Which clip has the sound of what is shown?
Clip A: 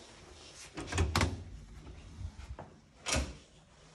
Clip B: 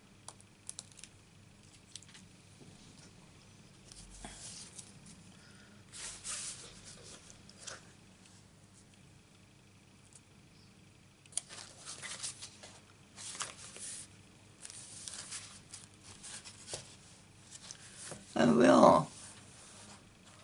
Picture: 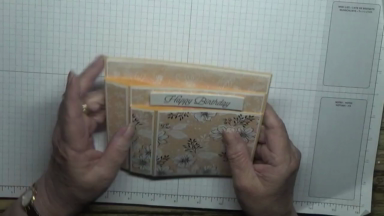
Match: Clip B